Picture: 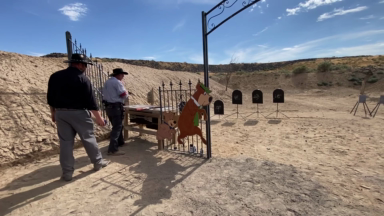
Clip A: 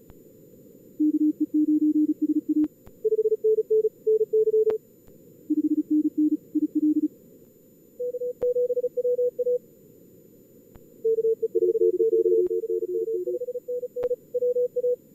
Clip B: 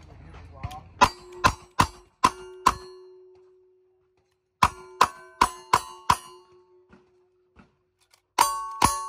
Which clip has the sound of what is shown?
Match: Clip B